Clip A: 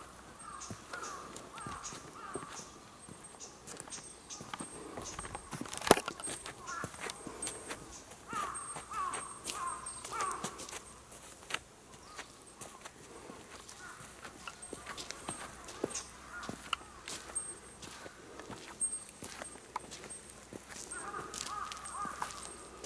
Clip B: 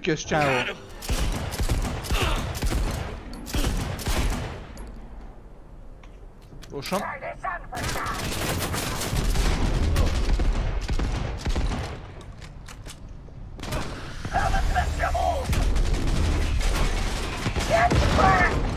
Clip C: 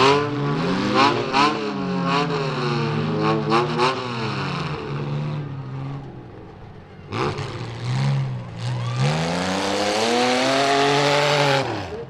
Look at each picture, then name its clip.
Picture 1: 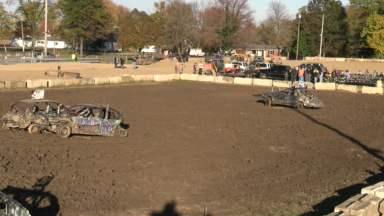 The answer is C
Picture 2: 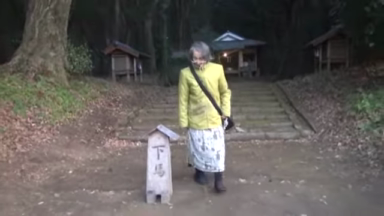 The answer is A